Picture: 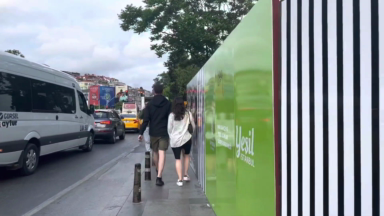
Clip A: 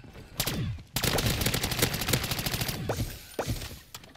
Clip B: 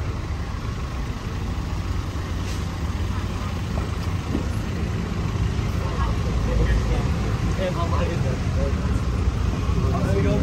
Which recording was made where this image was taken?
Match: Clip B